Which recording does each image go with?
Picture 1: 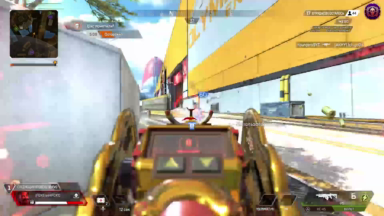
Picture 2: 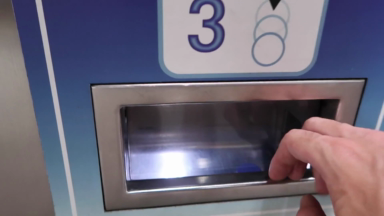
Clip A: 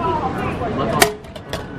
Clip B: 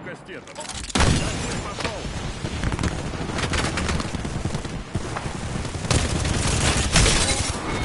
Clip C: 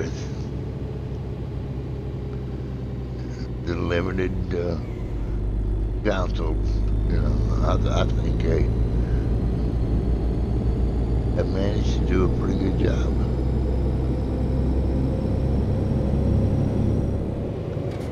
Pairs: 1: B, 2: A